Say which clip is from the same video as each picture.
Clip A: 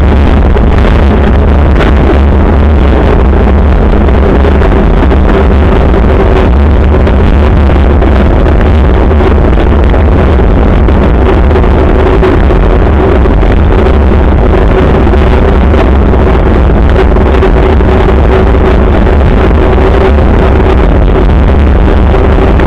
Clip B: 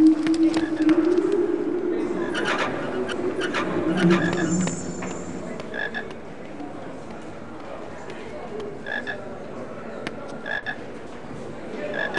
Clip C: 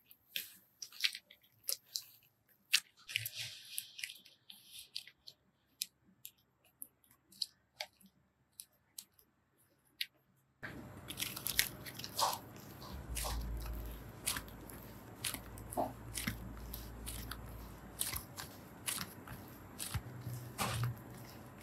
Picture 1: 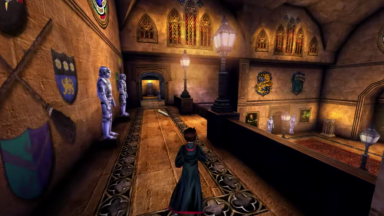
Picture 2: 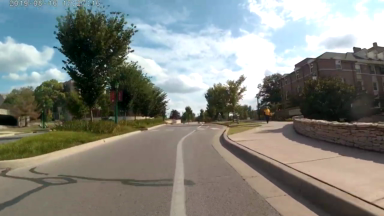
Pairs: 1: B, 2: A